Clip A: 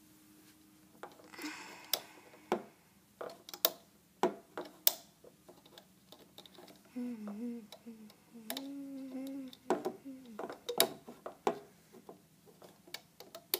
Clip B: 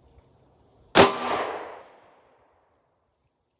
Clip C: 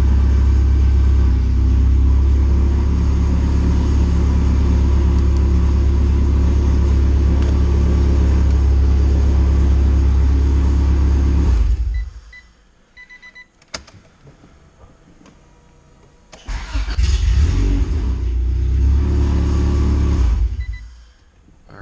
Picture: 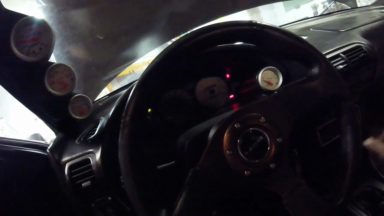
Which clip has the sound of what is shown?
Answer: C